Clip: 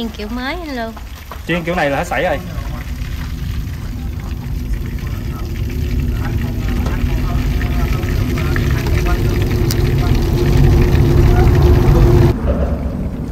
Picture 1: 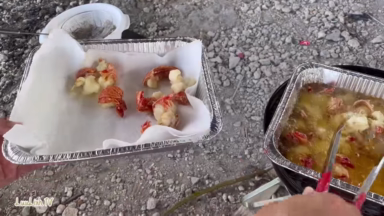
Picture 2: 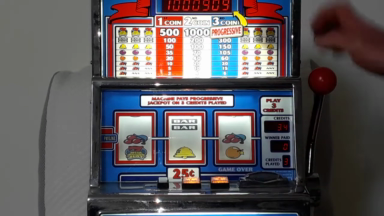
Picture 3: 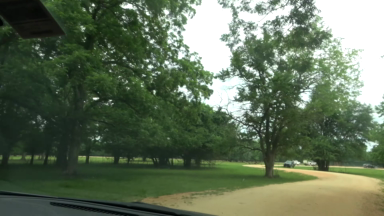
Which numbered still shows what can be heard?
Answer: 1